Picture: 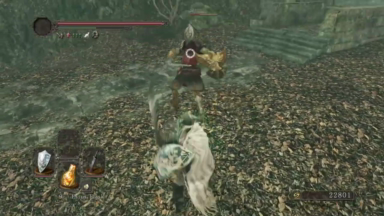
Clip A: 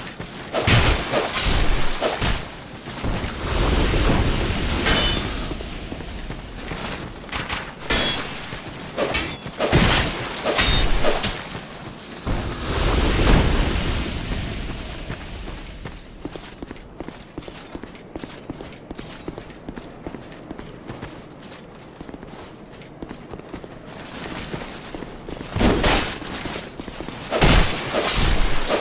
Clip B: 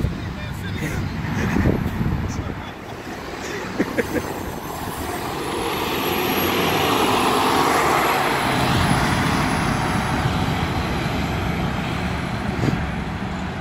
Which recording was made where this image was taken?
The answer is A